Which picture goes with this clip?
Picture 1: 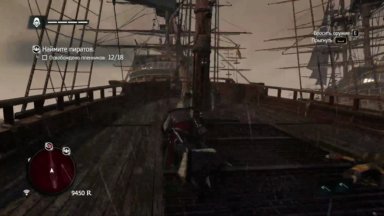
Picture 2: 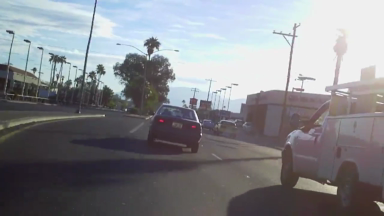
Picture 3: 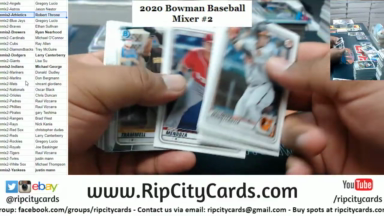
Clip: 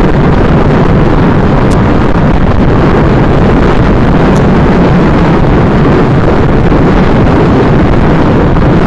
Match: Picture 2